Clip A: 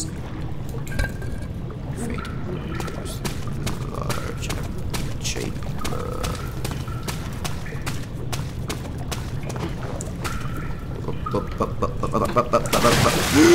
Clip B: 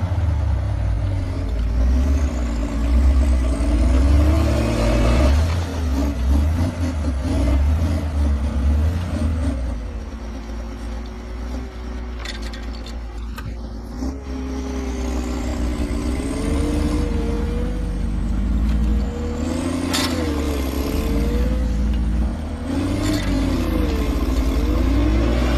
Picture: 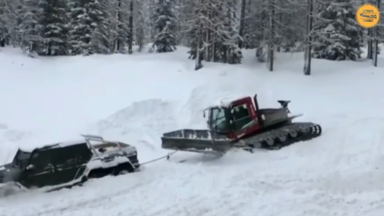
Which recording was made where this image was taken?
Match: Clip B